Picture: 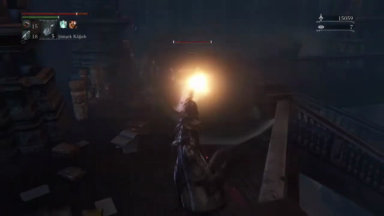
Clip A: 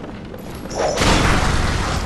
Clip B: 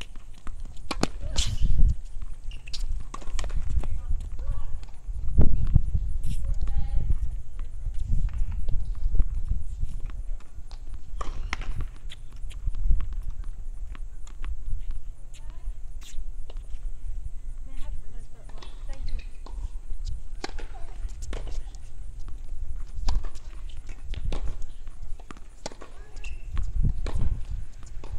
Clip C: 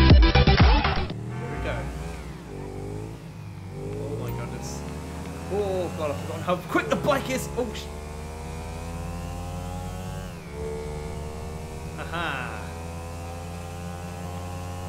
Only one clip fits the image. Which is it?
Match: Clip A